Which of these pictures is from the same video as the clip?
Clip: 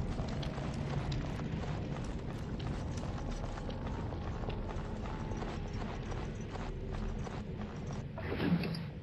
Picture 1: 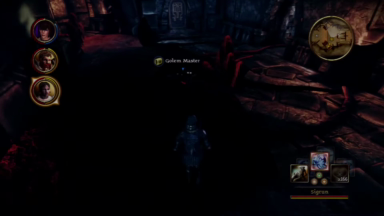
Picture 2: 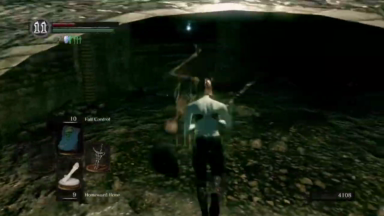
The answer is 1